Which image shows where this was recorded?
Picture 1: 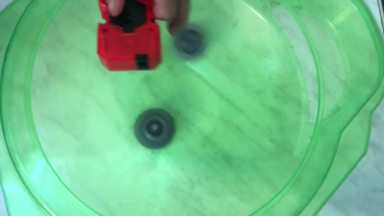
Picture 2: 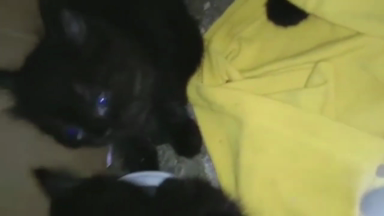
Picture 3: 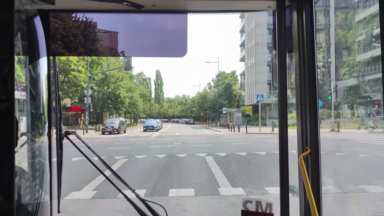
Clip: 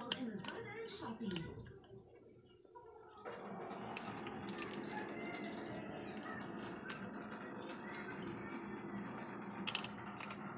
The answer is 2